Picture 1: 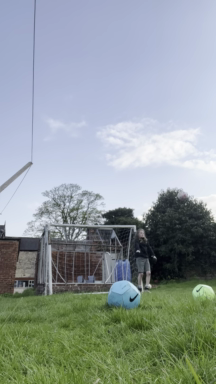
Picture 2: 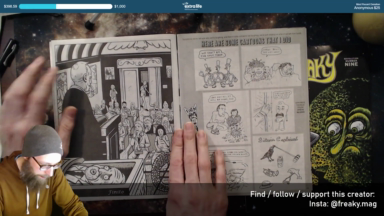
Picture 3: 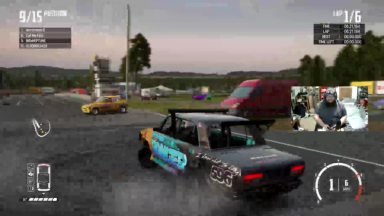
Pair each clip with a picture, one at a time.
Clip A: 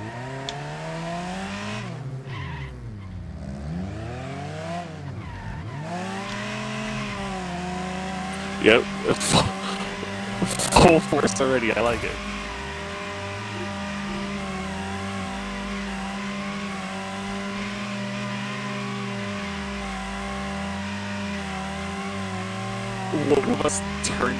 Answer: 3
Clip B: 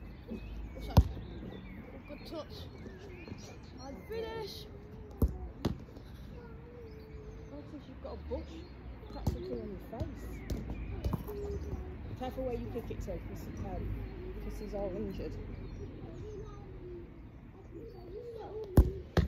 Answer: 1